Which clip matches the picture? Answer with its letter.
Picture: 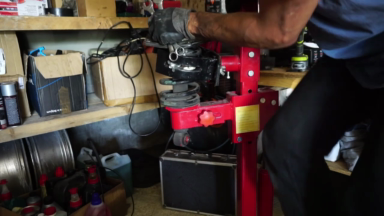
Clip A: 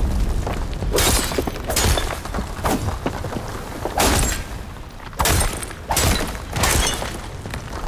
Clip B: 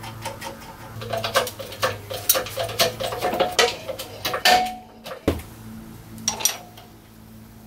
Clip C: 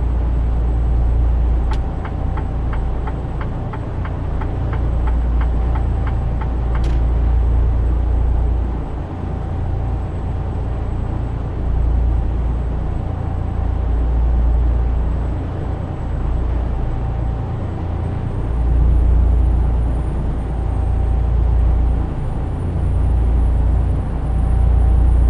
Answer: B